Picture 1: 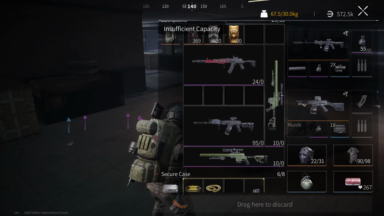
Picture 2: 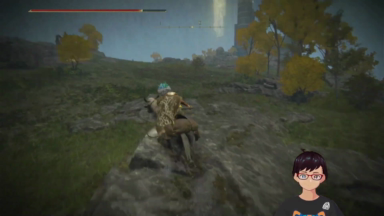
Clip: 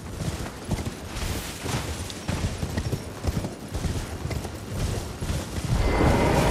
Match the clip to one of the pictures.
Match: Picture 2